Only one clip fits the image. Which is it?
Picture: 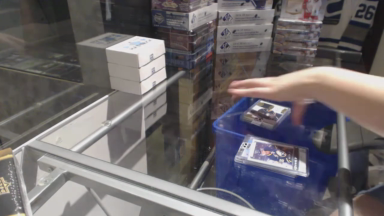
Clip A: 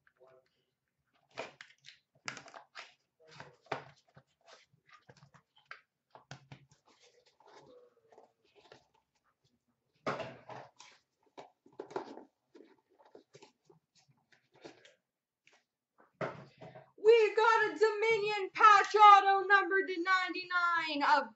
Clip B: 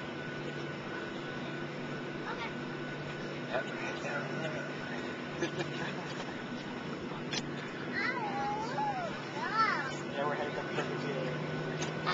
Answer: A